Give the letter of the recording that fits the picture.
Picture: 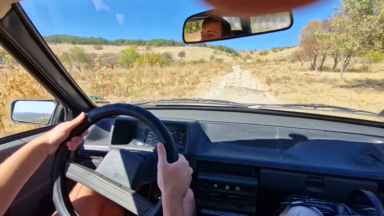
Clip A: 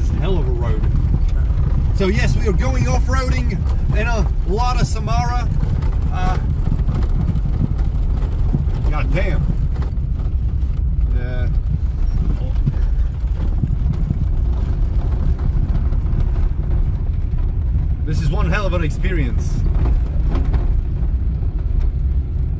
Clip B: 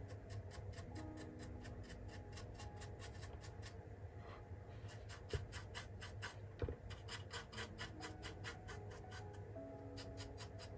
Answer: A